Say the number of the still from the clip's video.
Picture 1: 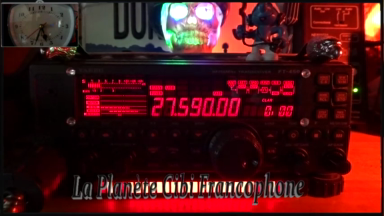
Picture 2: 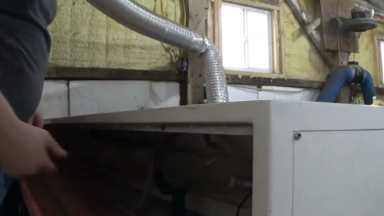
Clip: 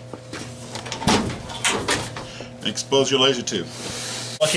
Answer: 2